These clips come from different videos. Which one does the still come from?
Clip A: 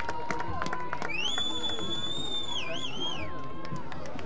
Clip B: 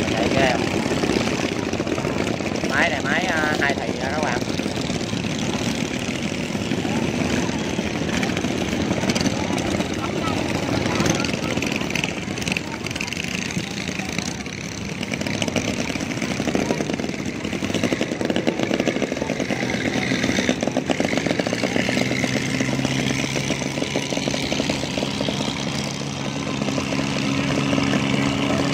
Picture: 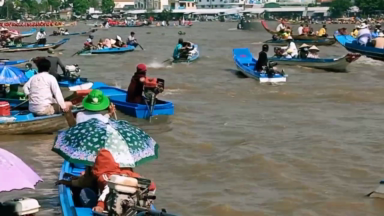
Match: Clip B